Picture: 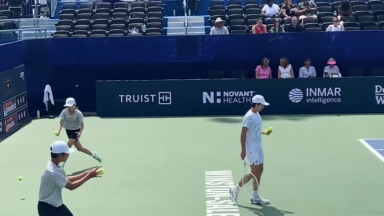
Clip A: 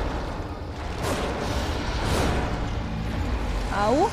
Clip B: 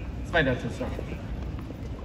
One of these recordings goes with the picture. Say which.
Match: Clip B